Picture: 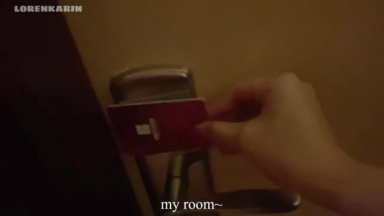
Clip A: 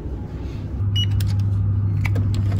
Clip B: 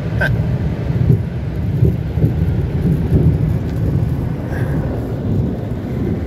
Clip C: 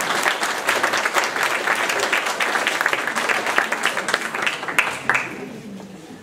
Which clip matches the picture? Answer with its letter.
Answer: A